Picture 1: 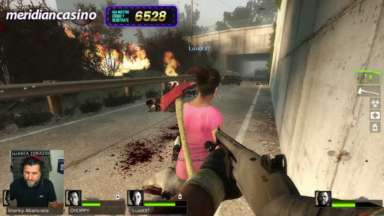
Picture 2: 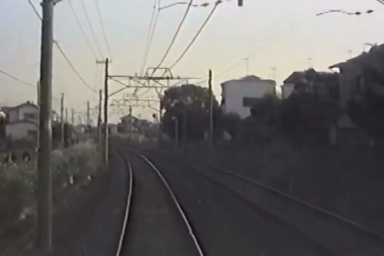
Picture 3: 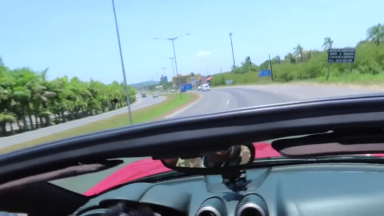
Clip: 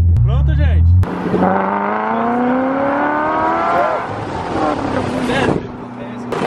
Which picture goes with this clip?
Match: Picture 3